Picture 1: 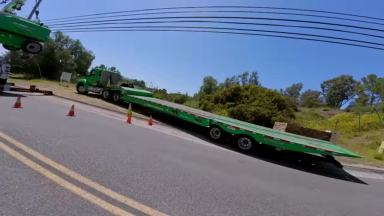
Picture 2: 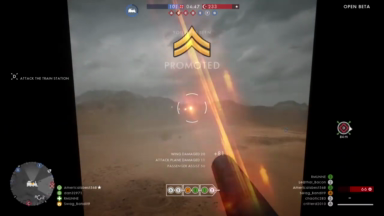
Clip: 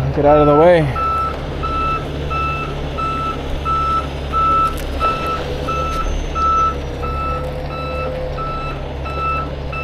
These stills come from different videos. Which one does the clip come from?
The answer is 1